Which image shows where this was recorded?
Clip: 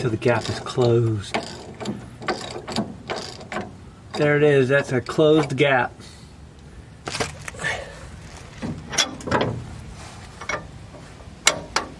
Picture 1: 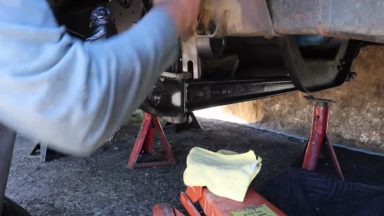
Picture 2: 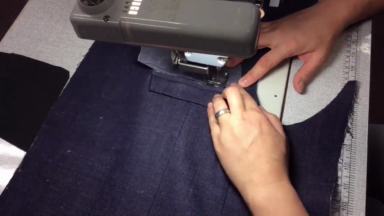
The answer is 1